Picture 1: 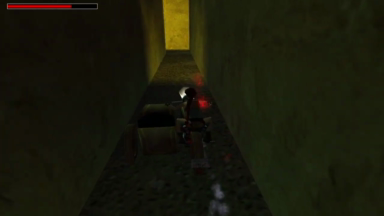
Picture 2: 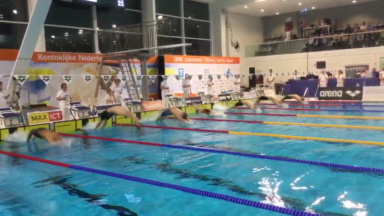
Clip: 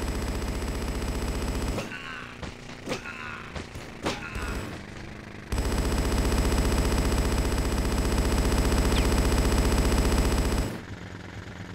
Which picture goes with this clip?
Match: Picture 1